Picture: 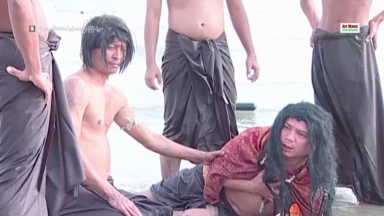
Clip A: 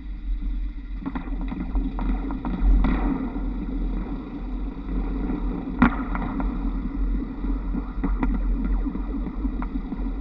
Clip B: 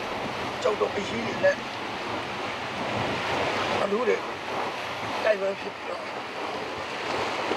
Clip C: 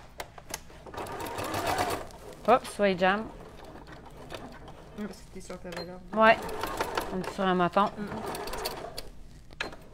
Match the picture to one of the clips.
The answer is B